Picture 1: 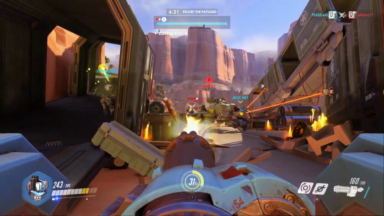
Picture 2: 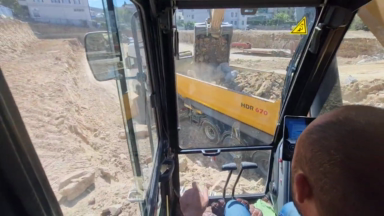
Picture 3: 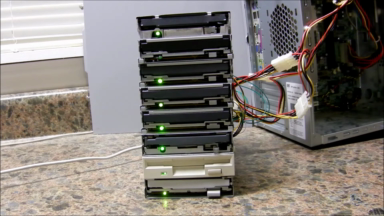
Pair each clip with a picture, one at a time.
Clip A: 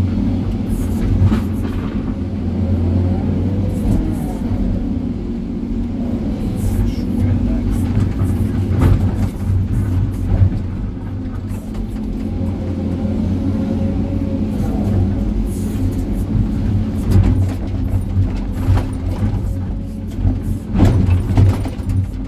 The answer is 2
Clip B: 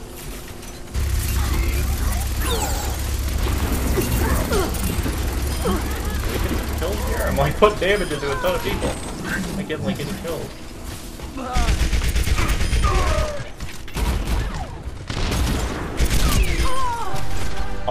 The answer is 1